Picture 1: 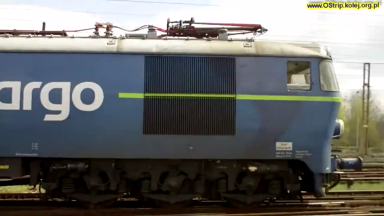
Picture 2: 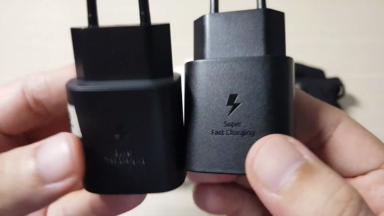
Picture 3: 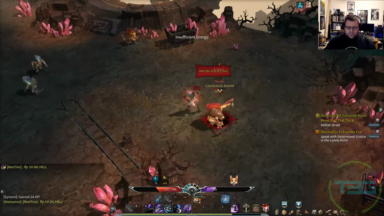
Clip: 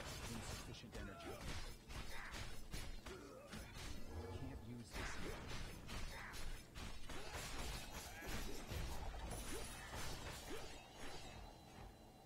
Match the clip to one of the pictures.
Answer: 3